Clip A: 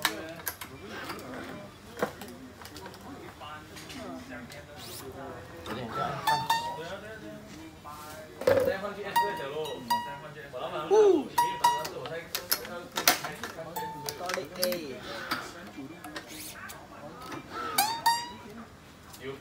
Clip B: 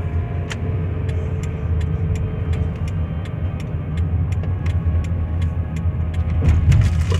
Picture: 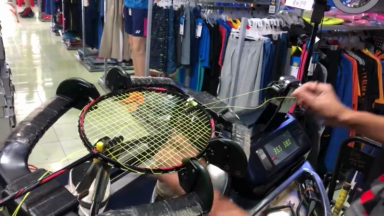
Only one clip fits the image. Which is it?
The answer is A